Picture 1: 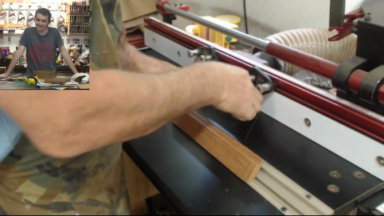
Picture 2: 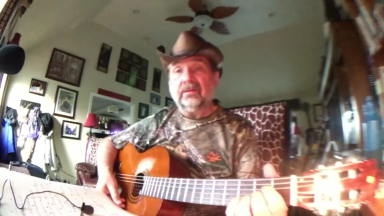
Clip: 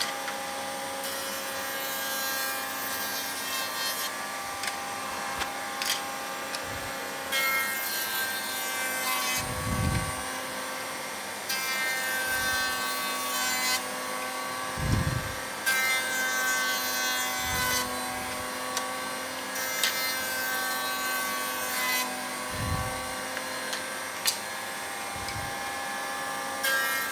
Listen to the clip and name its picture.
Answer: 1